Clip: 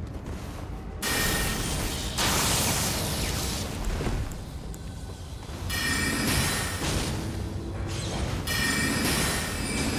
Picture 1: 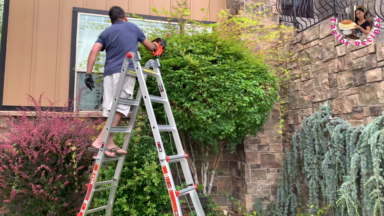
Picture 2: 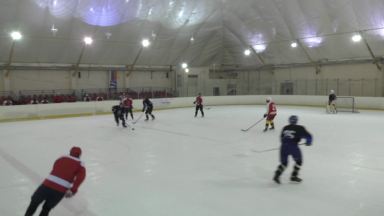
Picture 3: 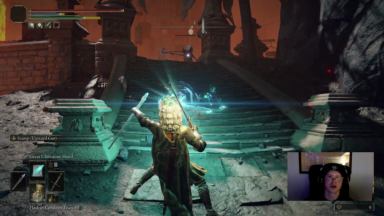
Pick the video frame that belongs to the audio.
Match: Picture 3